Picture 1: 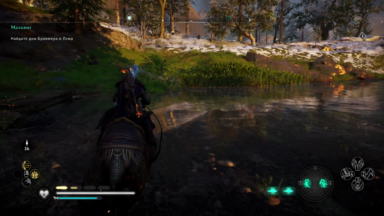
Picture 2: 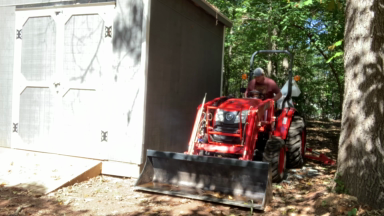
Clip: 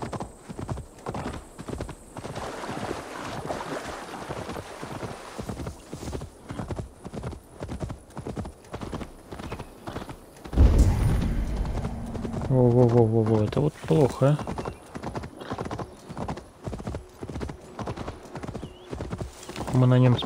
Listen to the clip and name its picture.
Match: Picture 1